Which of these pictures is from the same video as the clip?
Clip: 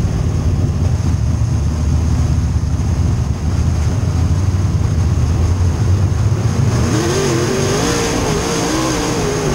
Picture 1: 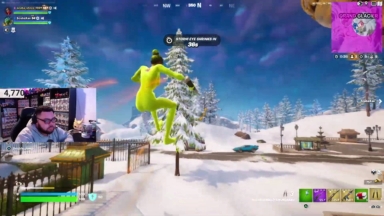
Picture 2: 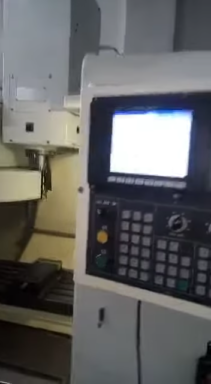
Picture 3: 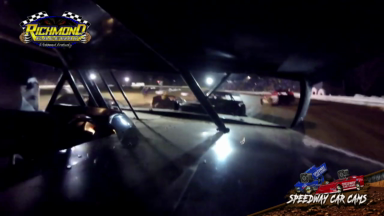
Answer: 3